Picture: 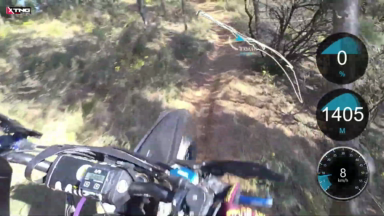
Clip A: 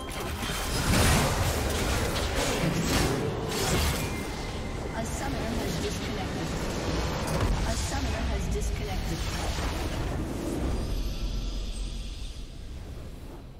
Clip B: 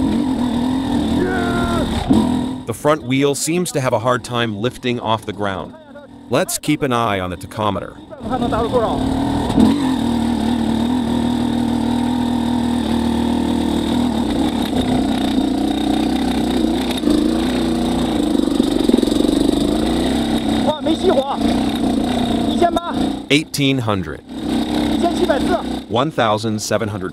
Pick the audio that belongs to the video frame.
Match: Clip B